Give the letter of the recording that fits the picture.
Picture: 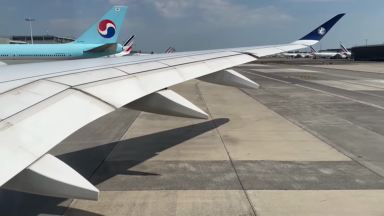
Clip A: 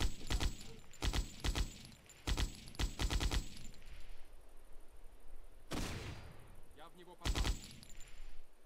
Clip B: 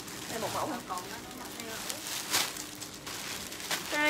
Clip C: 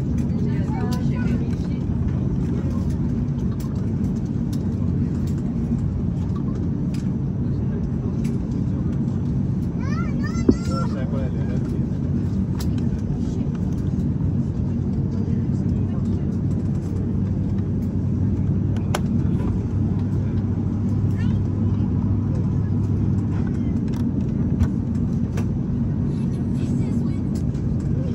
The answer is C